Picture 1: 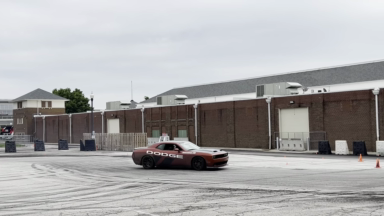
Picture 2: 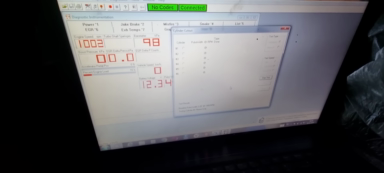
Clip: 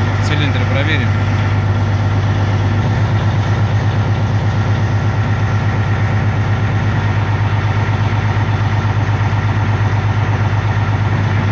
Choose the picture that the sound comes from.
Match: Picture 2